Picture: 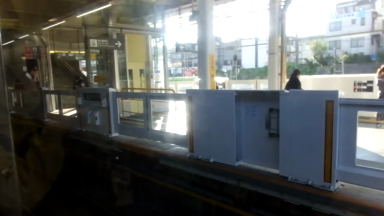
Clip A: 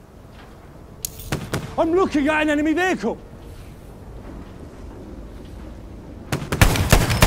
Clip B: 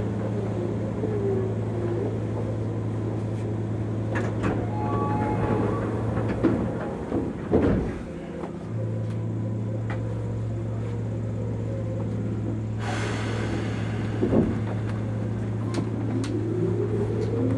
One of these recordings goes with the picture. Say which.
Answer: B